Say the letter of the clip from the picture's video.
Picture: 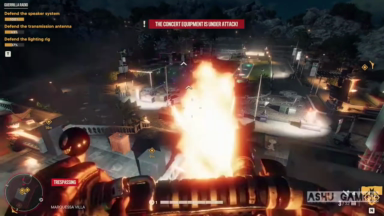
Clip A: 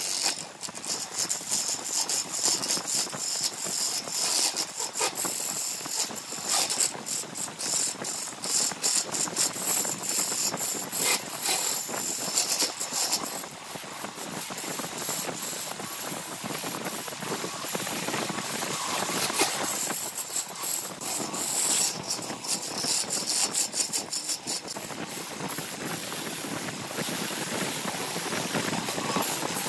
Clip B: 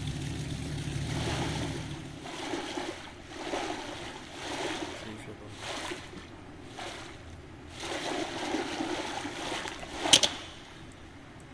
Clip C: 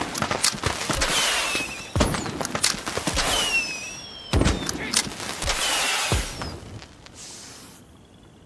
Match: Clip C